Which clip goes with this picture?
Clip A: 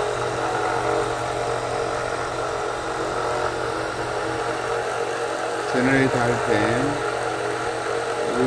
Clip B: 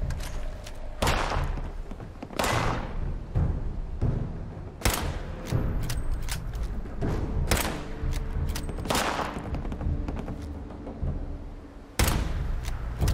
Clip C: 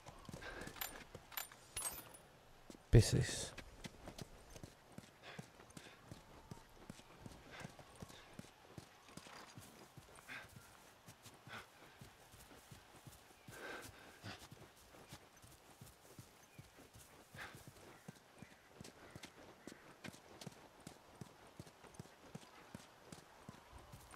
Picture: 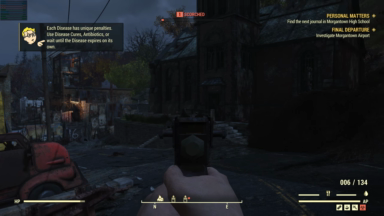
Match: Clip B